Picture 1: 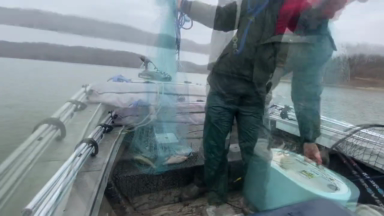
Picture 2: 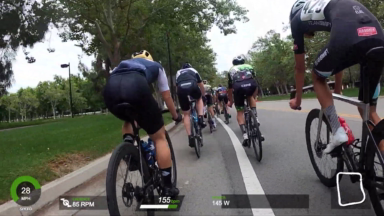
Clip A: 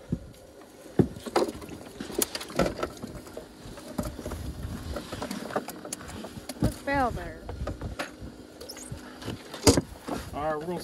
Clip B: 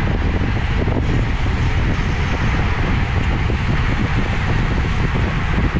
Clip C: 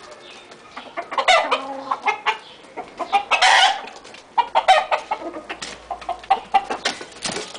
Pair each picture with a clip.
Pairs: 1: A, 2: B